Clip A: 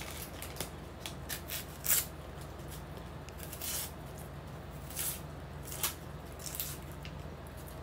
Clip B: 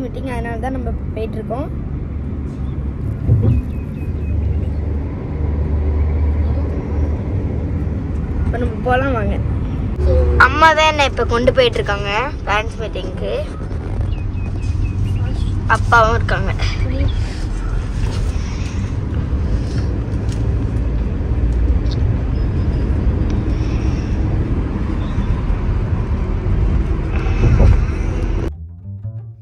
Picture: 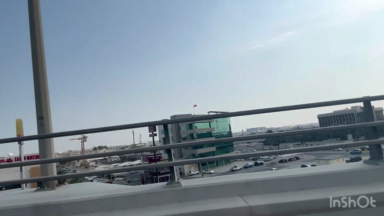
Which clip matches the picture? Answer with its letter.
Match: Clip B